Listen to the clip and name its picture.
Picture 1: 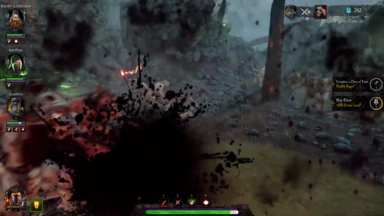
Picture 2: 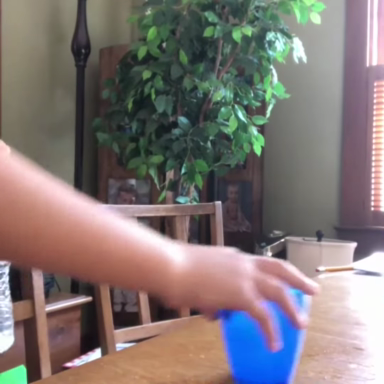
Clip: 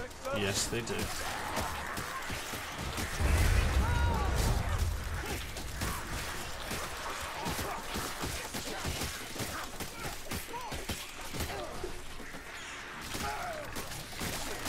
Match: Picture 1